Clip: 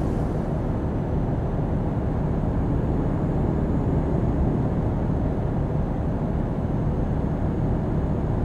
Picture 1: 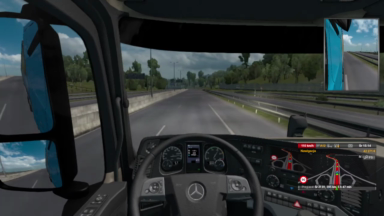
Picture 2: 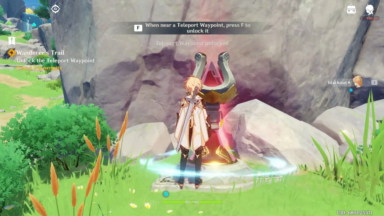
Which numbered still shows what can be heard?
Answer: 1